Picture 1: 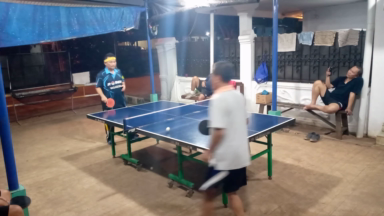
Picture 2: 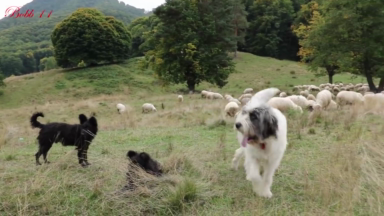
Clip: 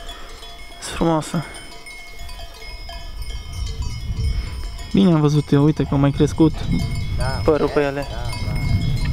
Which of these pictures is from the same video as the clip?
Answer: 2